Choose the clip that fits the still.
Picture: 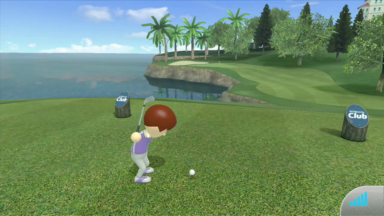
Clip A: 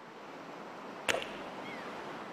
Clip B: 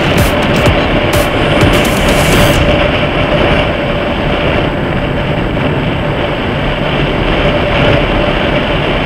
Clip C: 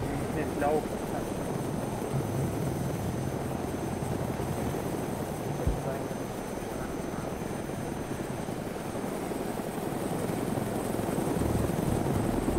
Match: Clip A